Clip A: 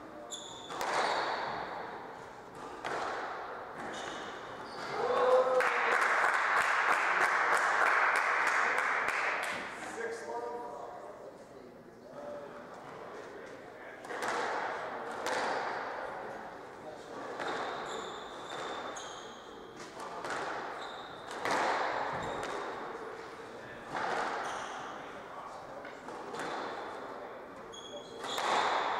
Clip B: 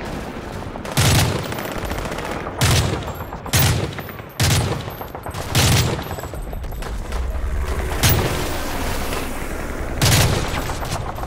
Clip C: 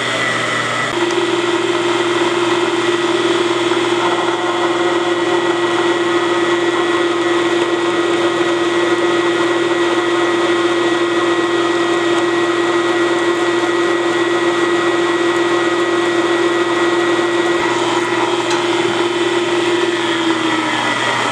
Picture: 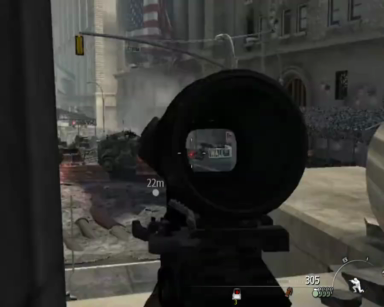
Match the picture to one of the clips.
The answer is B